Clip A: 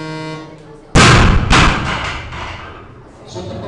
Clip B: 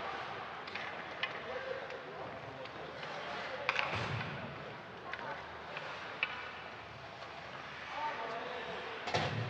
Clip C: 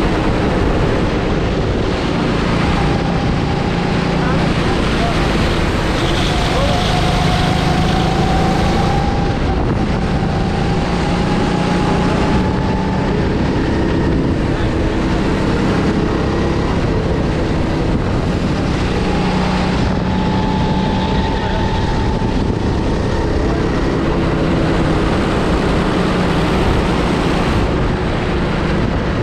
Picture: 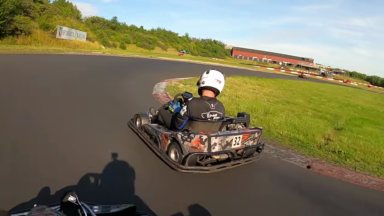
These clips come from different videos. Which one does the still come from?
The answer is C